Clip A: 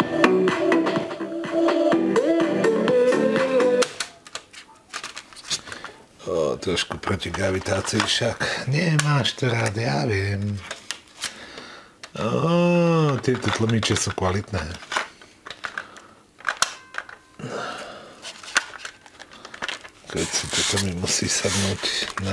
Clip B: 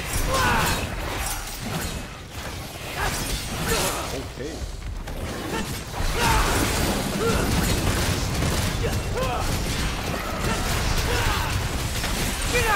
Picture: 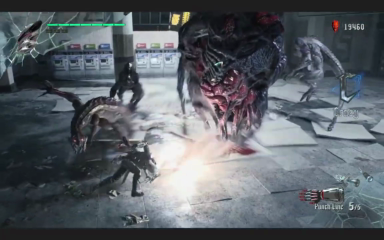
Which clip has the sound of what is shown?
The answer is B